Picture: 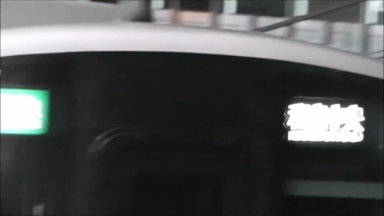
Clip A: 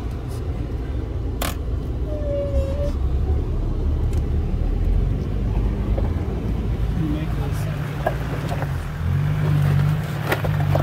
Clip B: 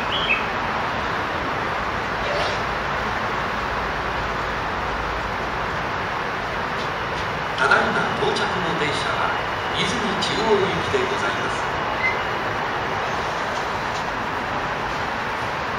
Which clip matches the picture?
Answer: B